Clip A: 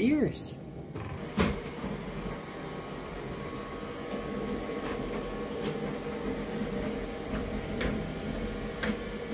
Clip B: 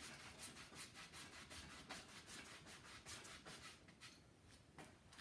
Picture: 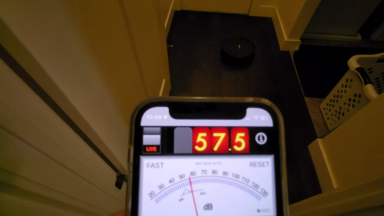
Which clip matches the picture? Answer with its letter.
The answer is A